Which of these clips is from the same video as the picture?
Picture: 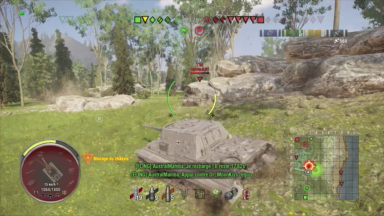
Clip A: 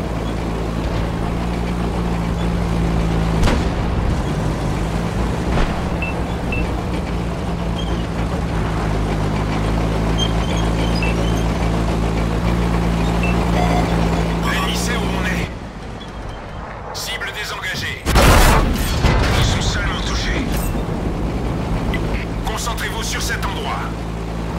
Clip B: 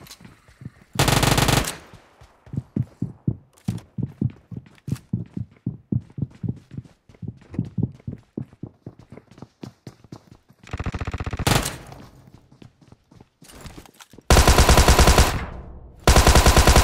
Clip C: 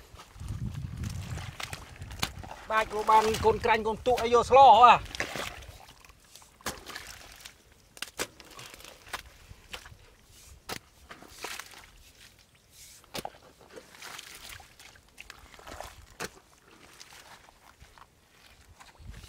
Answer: A